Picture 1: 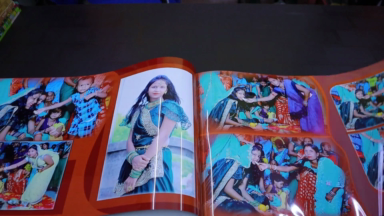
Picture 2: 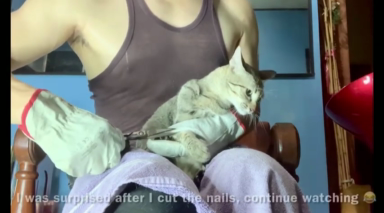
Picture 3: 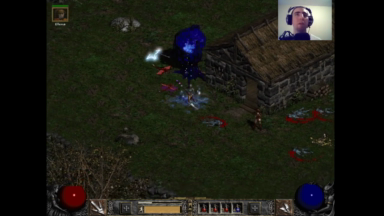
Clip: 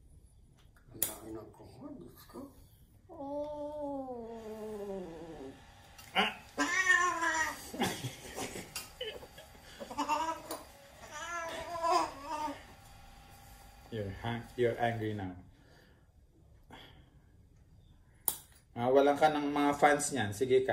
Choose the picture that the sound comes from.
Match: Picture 2